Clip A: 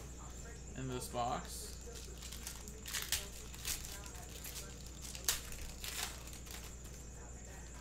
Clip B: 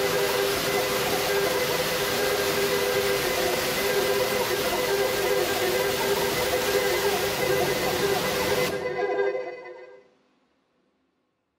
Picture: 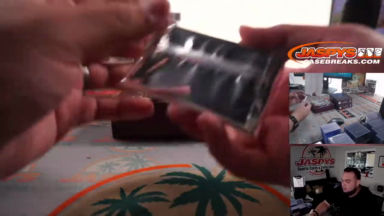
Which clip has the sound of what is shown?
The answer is A